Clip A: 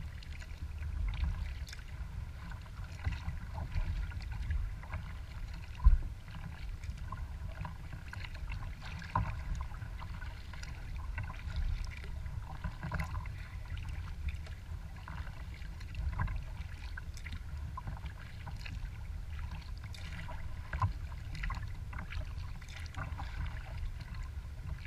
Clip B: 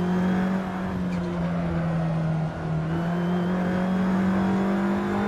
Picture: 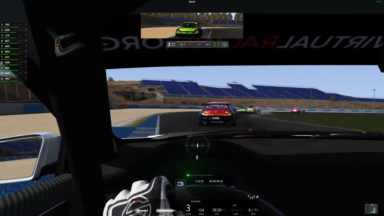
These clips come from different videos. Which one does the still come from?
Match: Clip B